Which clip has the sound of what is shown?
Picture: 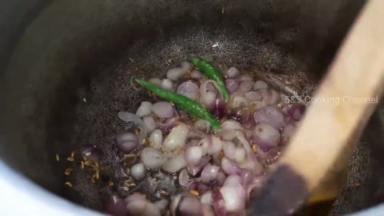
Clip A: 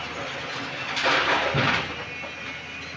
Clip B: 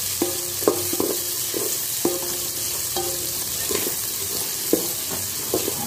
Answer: B